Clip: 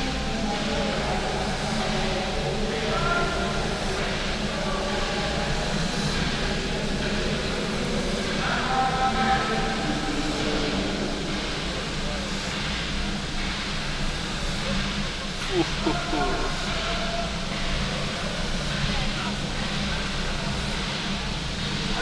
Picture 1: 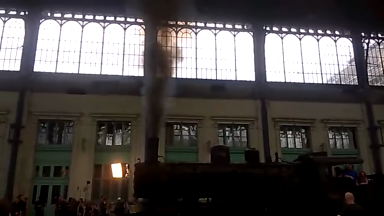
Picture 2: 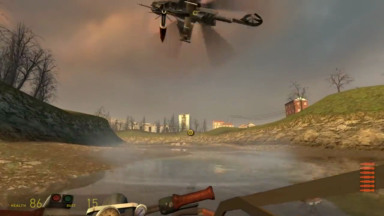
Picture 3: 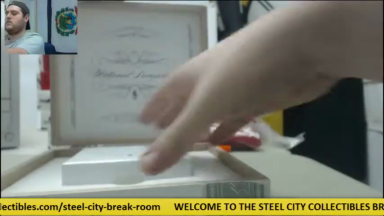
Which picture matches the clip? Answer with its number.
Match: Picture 1